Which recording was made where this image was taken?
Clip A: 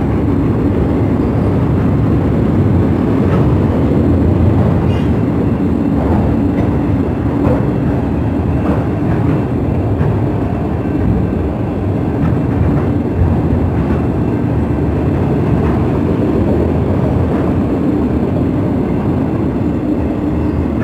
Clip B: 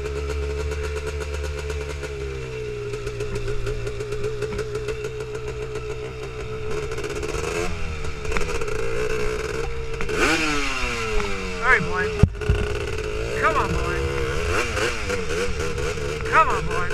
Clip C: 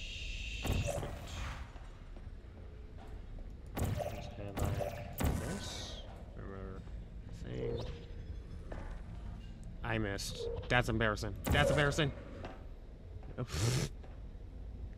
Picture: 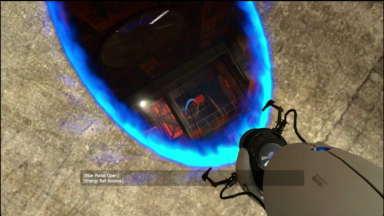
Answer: C